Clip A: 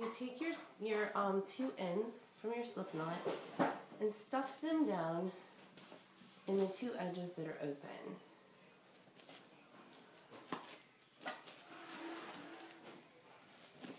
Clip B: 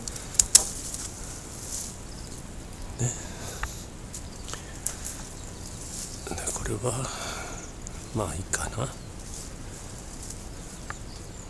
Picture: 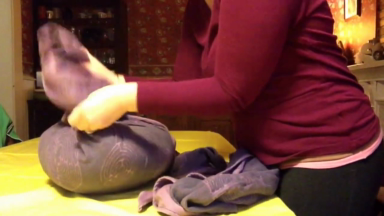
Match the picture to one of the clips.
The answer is A